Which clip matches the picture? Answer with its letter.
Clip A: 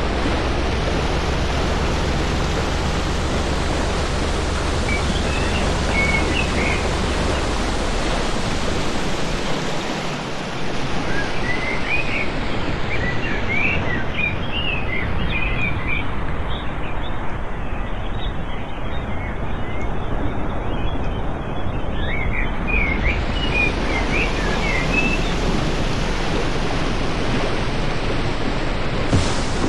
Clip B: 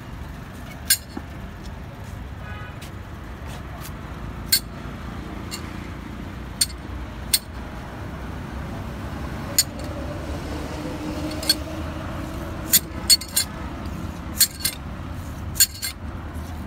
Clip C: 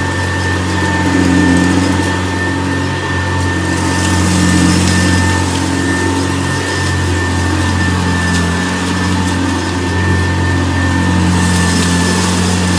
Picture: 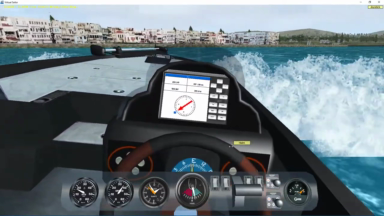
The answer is A